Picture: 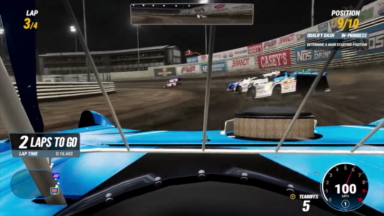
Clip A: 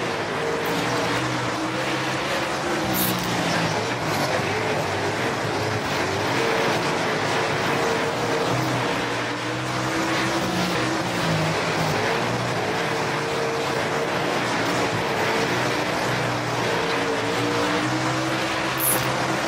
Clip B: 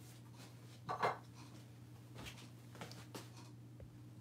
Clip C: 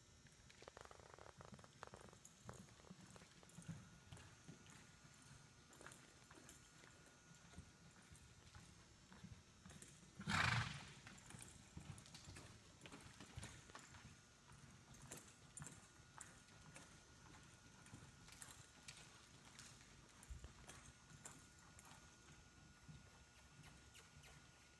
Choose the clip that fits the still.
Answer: A